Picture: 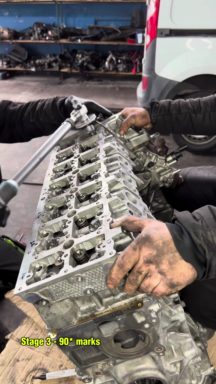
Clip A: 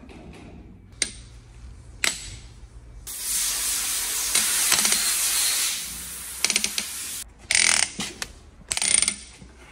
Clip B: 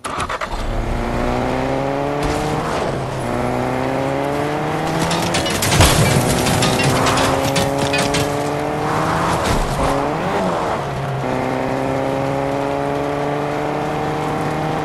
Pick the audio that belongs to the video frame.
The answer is A